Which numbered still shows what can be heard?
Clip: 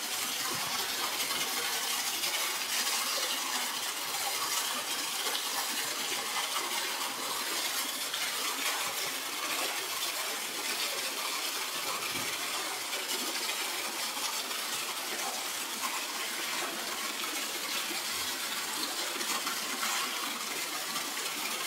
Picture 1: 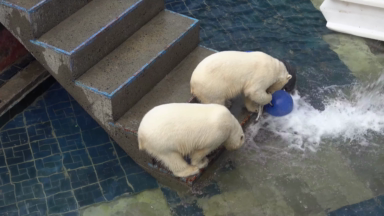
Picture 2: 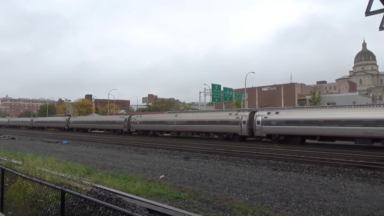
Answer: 1